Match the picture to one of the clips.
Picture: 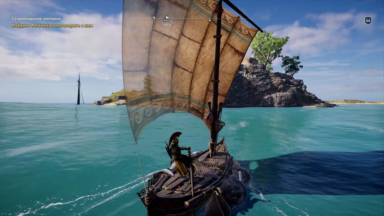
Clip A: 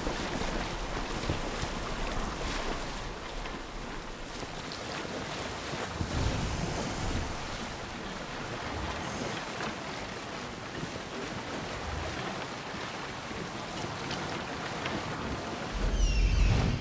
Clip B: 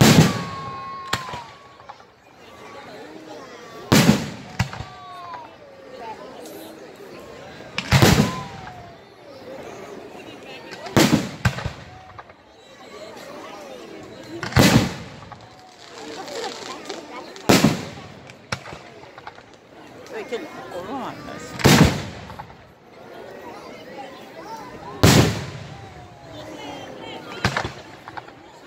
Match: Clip A